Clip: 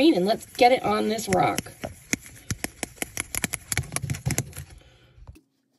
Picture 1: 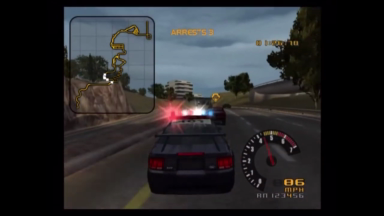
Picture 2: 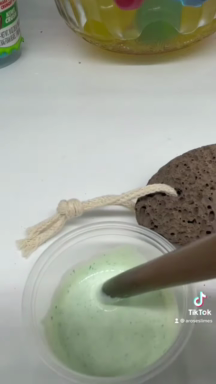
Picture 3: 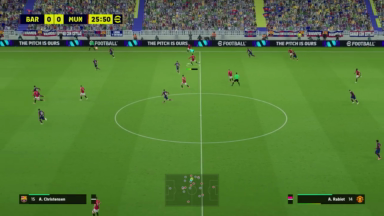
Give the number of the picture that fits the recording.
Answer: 2